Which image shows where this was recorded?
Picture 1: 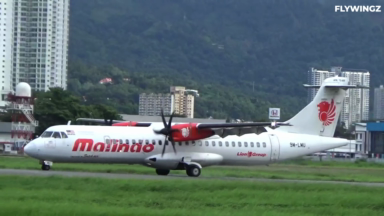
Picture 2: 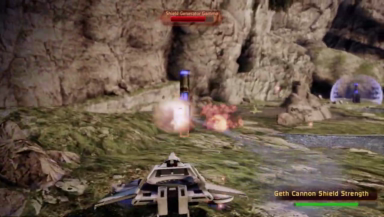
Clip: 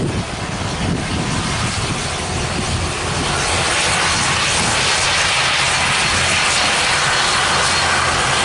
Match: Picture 1